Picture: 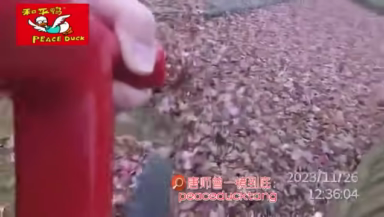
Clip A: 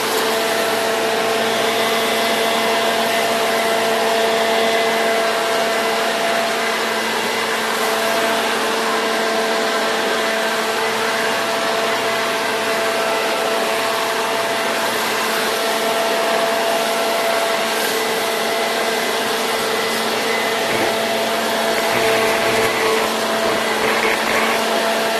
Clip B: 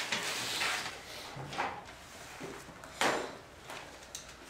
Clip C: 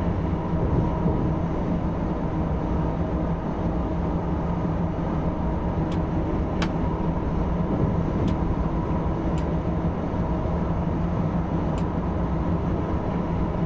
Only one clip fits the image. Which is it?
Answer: A